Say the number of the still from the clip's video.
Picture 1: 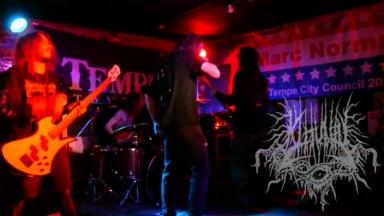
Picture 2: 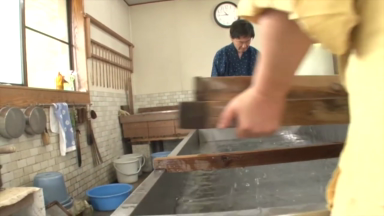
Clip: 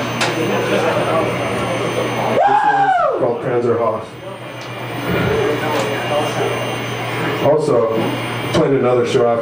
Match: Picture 1